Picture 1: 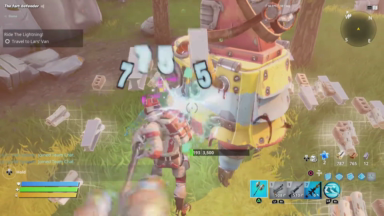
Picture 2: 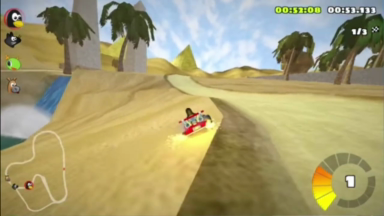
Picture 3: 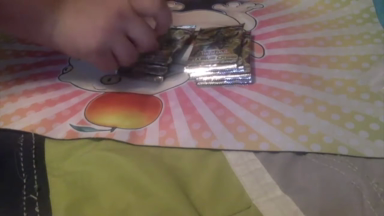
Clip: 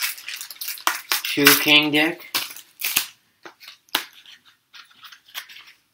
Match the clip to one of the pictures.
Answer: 3